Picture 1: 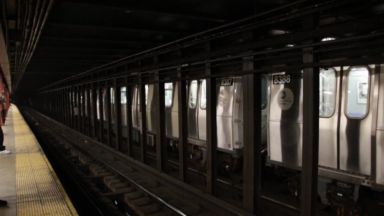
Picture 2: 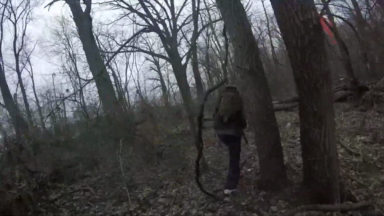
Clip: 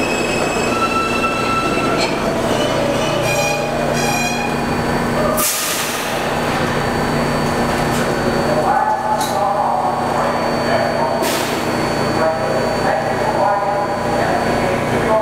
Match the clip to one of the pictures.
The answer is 1